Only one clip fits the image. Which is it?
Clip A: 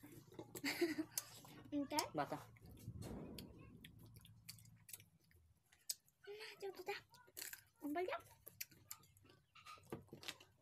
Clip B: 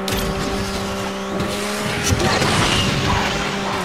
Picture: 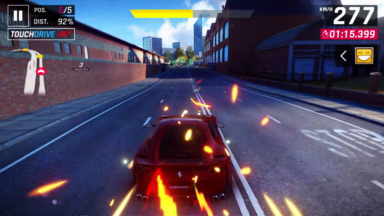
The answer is B